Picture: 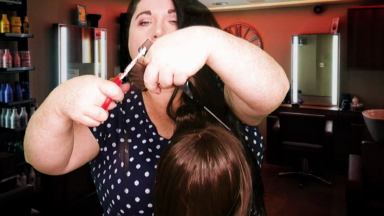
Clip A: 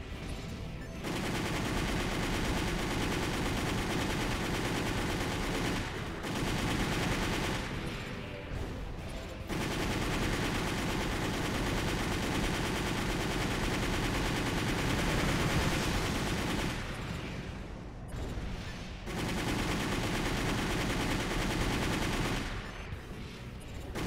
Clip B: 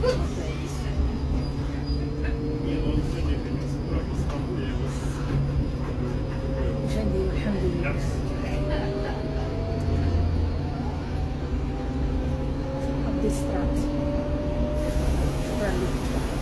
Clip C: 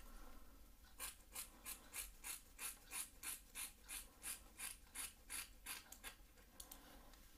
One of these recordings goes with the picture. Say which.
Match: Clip C